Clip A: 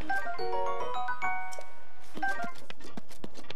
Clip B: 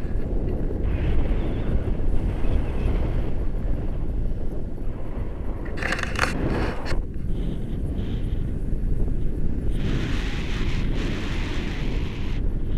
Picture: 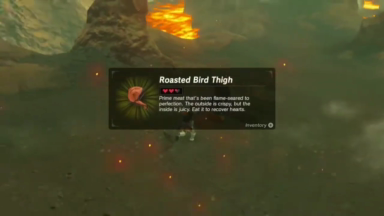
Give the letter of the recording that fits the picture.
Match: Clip A